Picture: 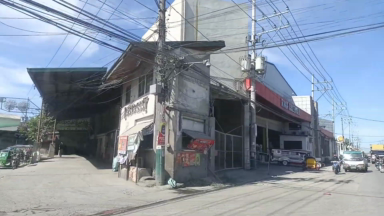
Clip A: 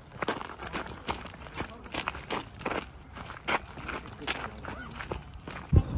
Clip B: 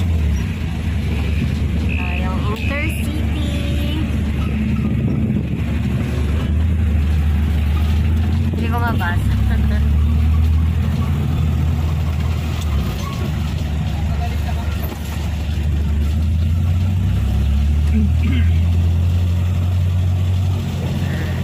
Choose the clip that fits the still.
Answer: B